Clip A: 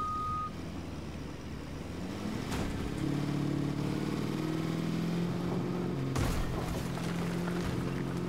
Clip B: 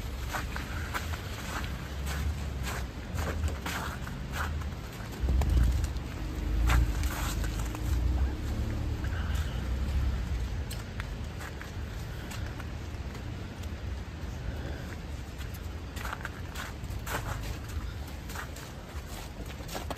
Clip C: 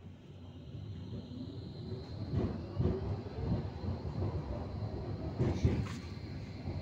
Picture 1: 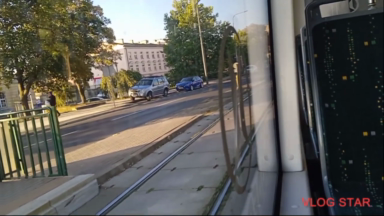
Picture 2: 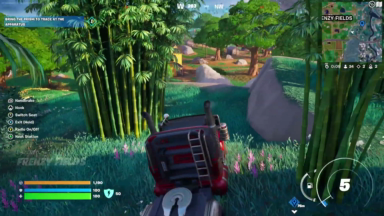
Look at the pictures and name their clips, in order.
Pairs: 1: C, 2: A